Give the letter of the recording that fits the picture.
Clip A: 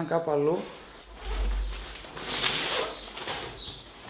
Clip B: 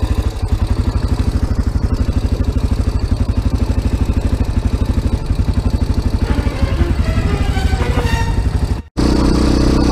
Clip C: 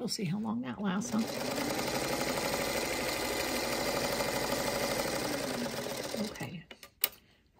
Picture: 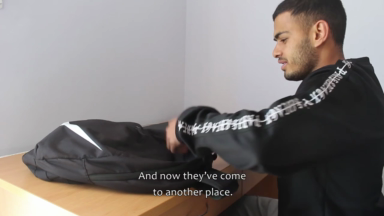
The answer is A